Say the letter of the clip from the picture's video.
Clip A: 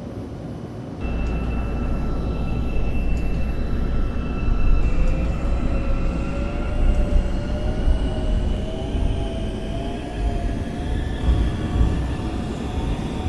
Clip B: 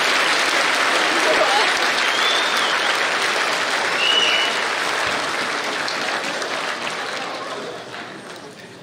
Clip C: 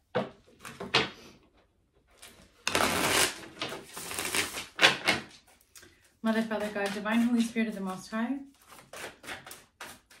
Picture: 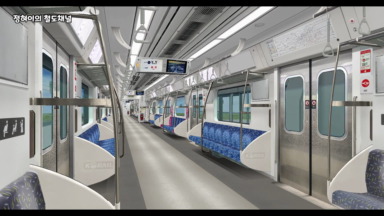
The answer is A